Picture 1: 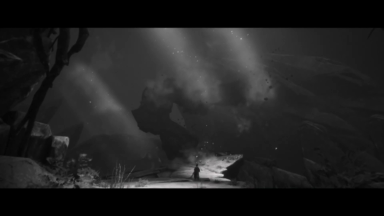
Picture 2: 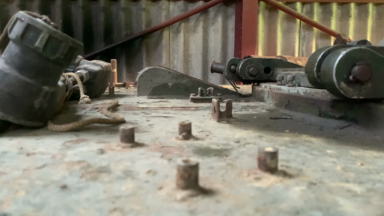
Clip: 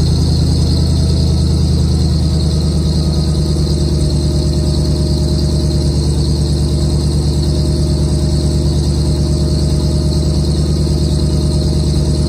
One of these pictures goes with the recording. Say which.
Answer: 2